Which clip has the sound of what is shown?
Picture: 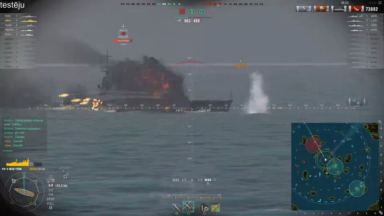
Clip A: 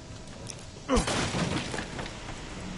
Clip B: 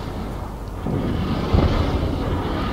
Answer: B